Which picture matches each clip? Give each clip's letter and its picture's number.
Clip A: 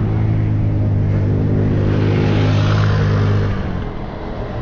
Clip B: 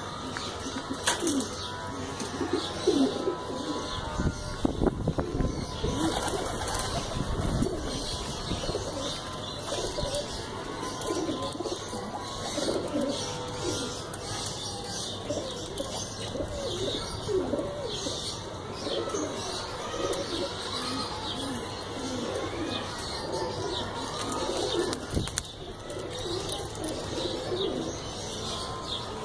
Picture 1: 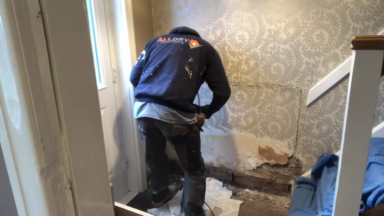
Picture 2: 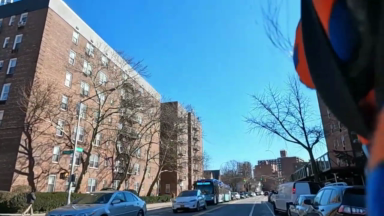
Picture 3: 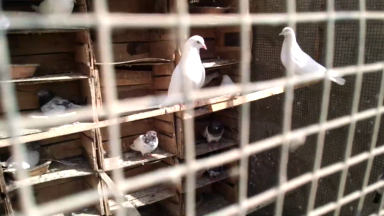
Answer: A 2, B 3